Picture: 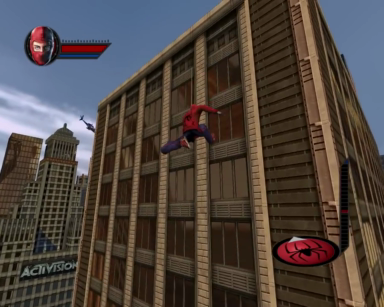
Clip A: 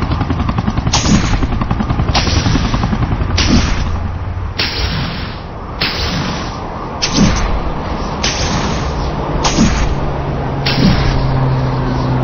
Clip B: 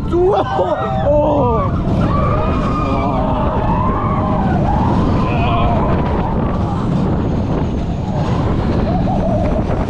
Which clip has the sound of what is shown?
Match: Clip A